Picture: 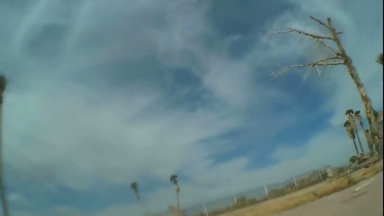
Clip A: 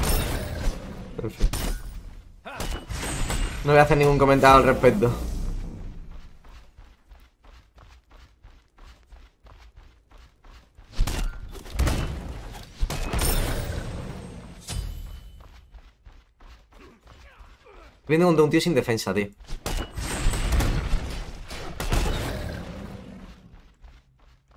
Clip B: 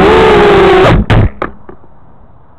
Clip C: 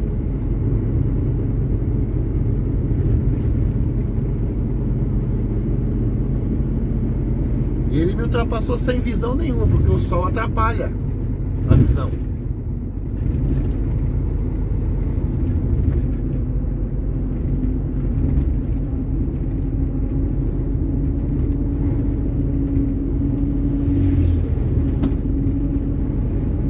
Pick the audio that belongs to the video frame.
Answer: B